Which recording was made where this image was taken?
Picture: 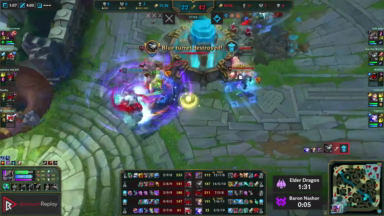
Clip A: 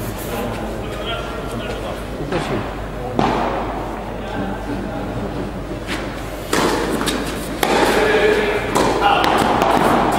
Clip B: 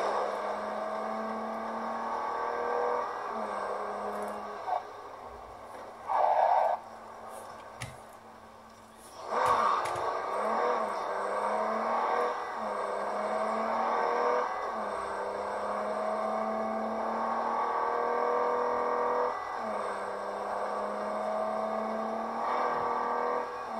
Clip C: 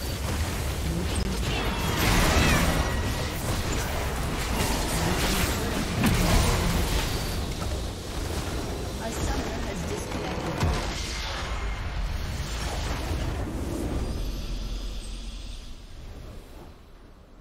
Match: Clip C